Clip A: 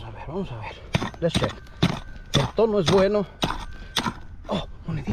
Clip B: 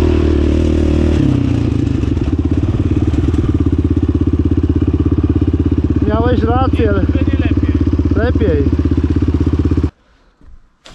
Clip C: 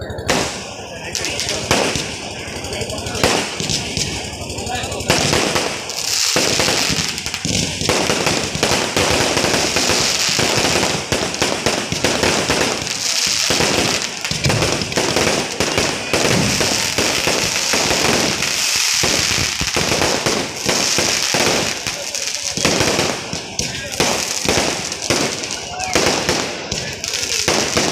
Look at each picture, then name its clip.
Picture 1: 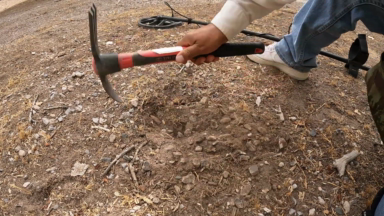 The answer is A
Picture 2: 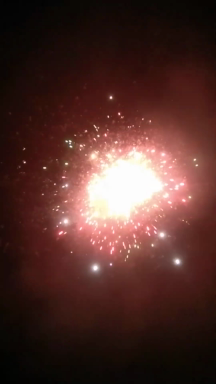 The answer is C